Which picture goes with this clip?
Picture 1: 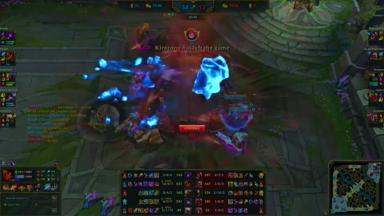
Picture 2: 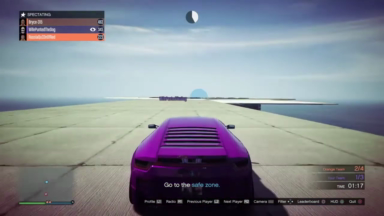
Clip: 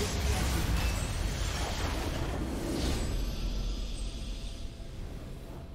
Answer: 1